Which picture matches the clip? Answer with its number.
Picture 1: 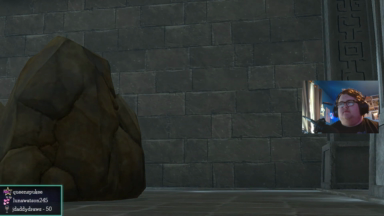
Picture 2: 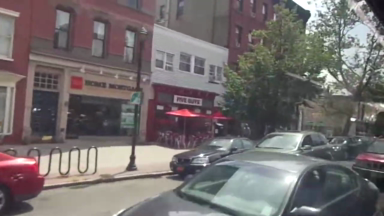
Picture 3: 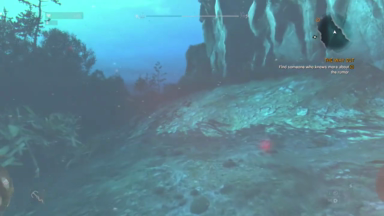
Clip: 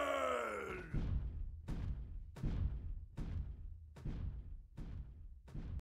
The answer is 1